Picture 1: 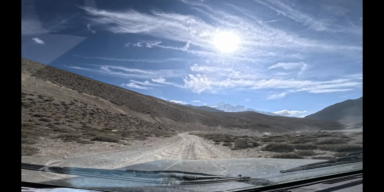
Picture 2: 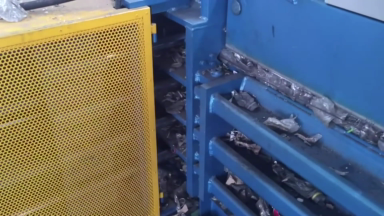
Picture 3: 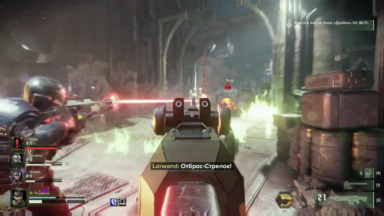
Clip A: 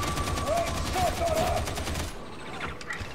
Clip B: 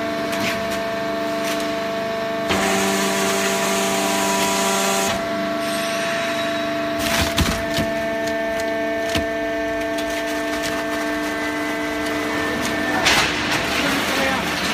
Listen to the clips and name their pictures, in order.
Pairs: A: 3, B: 2